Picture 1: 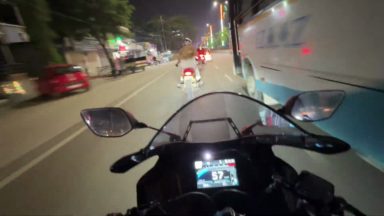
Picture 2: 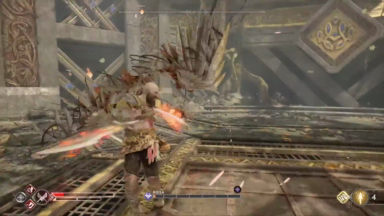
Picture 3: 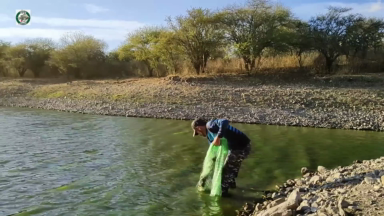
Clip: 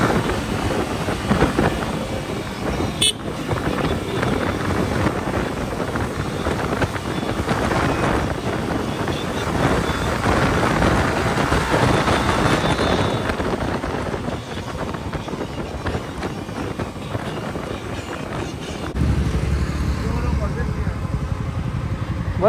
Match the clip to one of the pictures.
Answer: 1